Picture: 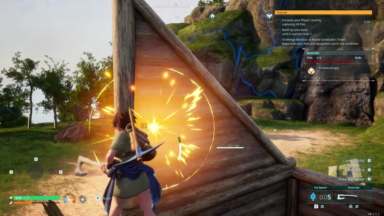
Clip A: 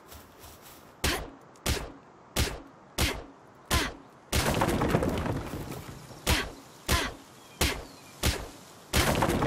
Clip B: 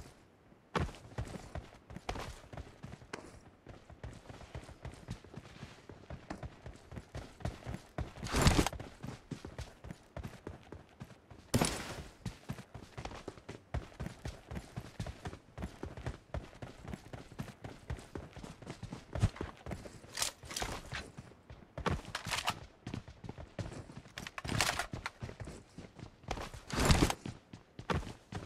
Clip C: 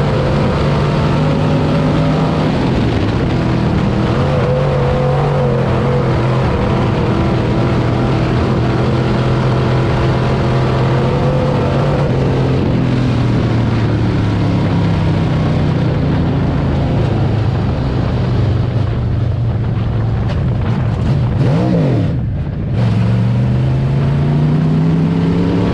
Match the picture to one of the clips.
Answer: A